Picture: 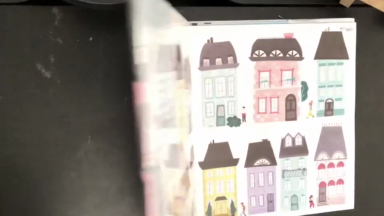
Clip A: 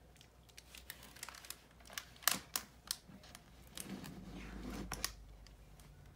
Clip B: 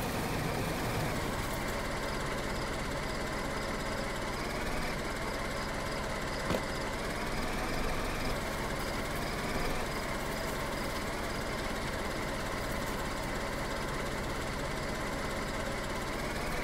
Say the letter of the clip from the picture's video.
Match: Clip A